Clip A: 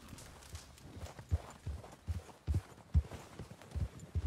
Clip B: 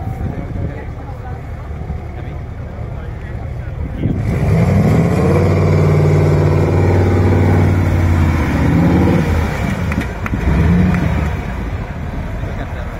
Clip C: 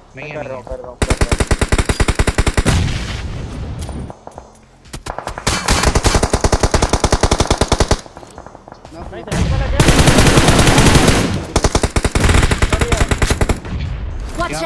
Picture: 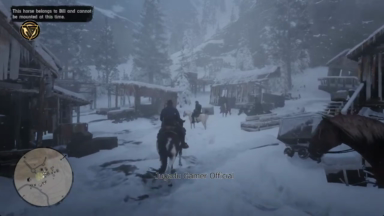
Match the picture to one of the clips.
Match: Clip A